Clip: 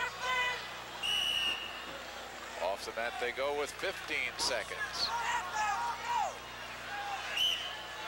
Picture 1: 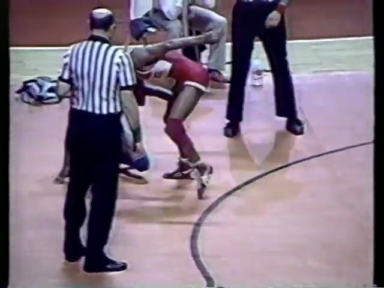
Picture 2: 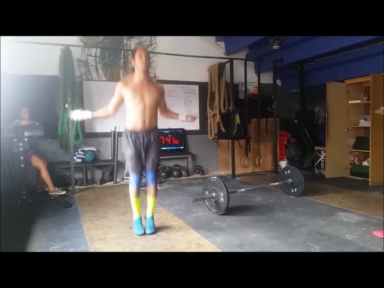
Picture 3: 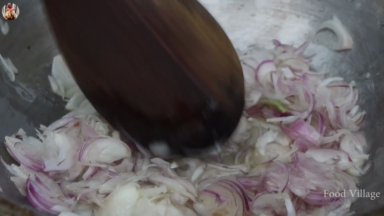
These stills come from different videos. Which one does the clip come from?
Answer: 1